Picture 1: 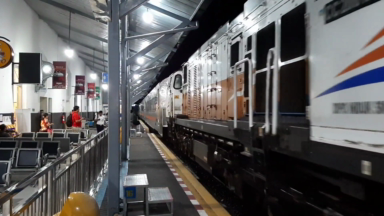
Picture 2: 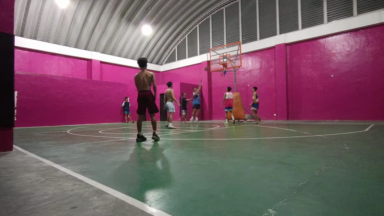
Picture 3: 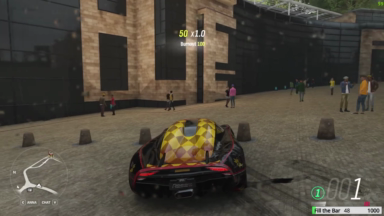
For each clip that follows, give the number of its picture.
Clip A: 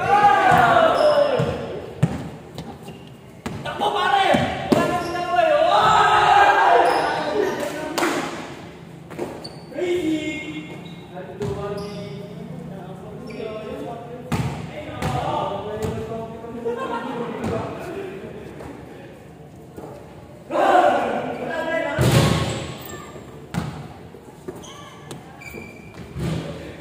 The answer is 2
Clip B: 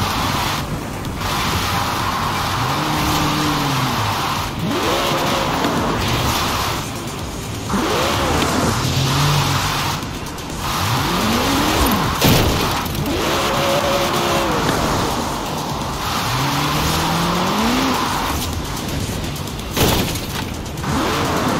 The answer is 3